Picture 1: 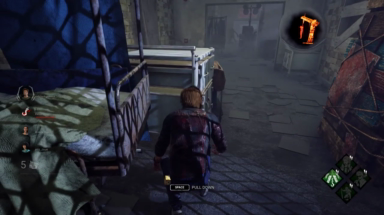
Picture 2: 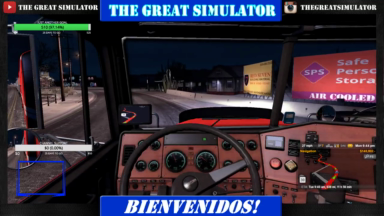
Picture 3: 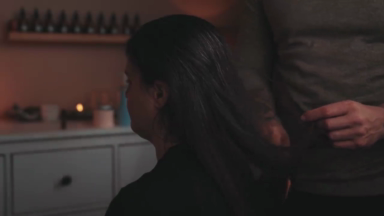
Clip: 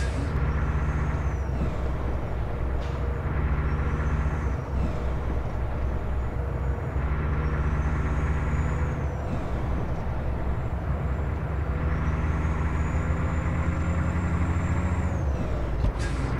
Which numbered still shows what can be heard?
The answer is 2